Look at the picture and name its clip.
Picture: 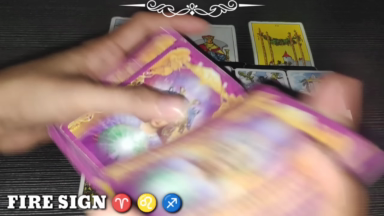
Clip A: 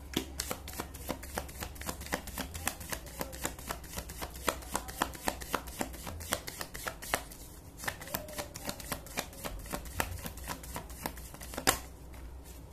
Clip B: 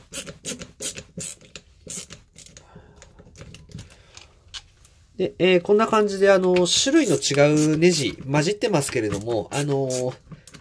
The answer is A